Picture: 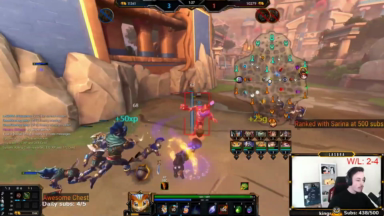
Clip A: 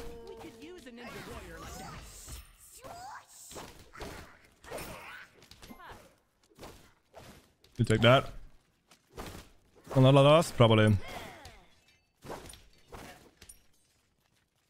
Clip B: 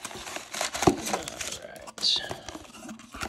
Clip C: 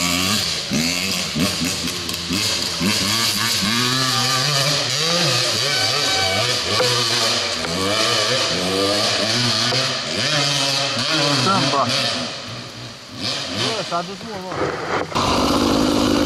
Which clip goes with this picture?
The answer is A